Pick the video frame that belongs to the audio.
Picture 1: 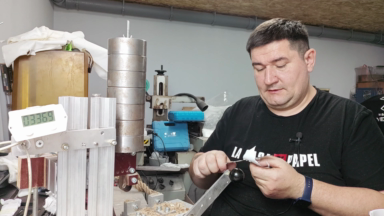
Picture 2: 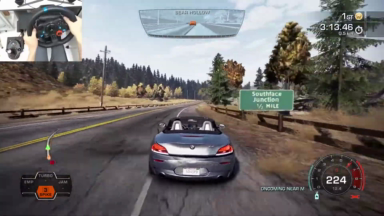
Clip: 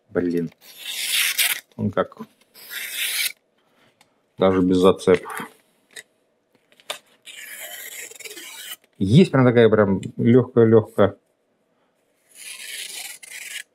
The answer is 1